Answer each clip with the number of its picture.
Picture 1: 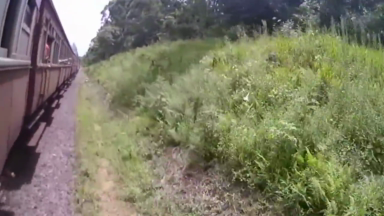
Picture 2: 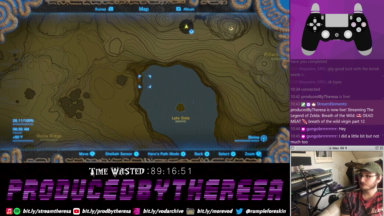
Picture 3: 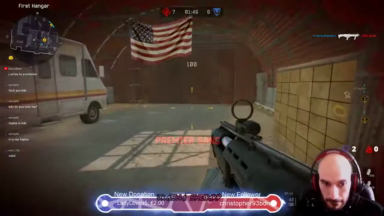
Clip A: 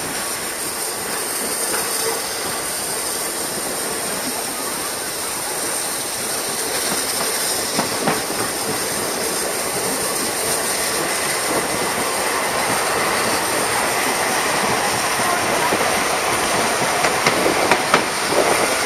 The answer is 1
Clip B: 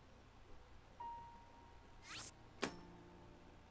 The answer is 2